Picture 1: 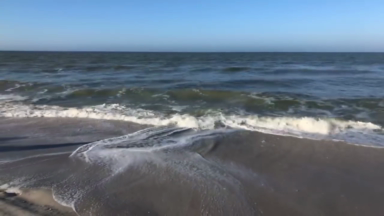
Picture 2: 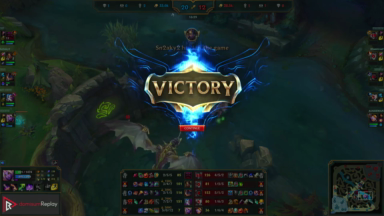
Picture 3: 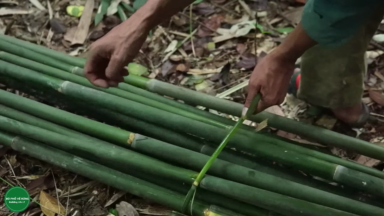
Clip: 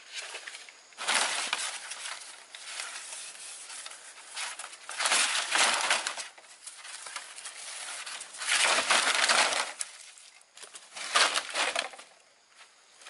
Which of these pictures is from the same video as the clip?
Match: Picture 3